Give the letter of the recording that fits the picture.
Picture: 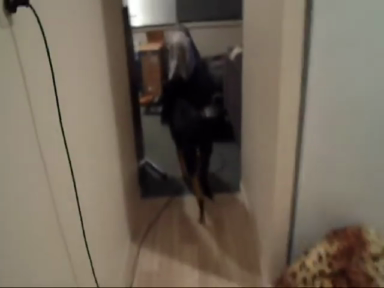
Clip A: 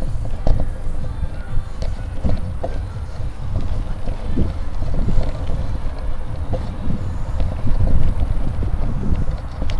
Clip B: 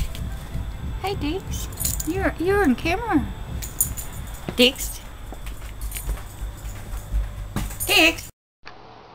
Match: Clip B